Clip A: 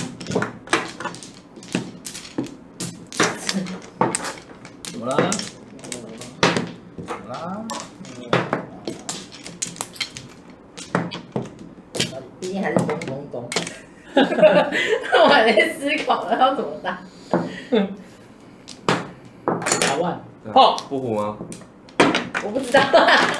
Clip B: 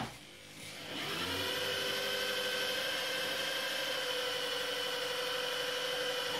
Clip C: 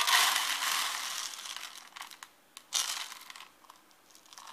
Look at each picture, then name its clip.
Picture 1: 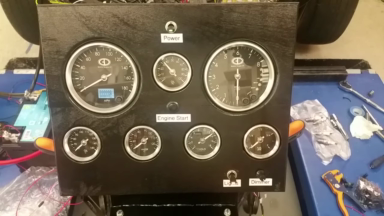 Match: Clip B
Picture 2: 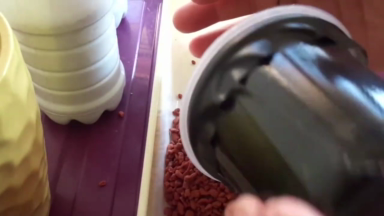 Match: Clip C